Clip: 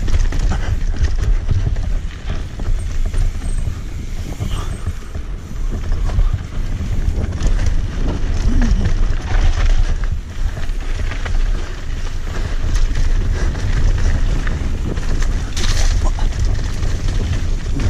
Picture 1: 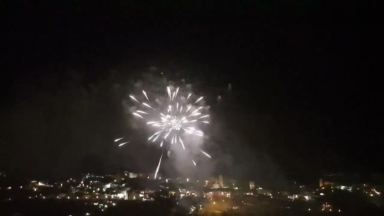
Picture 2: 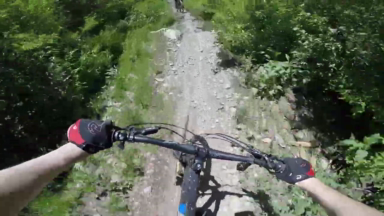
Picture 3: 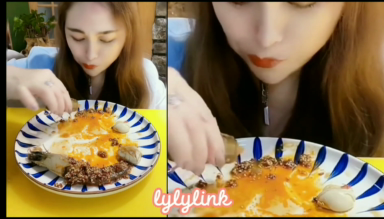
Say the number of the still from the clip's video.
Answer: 2